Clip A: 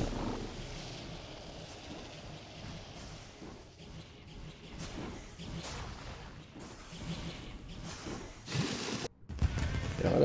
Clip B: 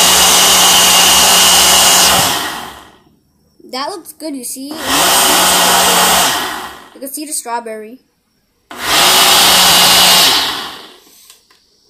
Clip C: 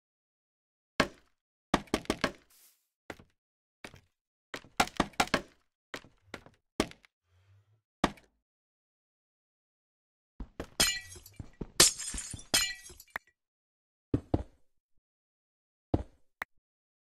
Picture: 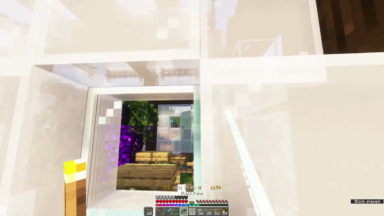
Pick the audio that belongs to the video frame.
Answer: C